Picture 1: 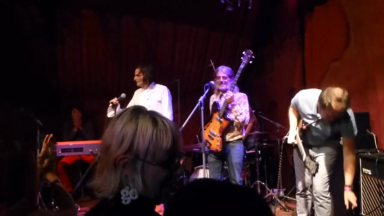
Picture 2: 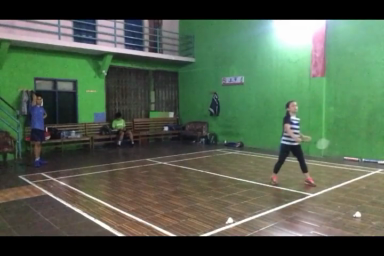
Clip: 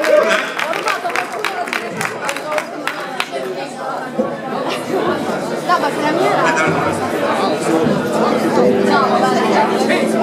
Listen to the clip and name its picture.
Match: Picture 1